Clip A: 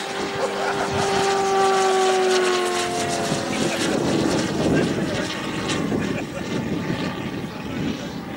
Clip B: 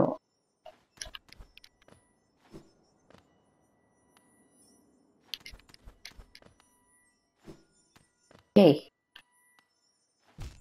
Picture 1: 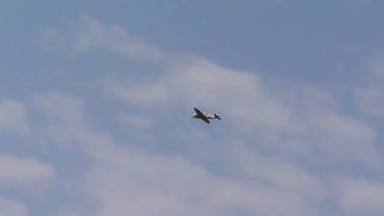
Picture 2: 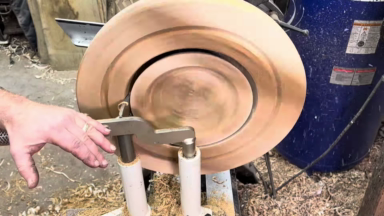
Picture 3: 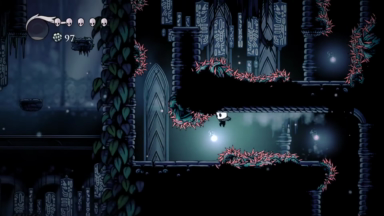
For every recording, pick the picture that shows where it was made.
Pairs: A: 1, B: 3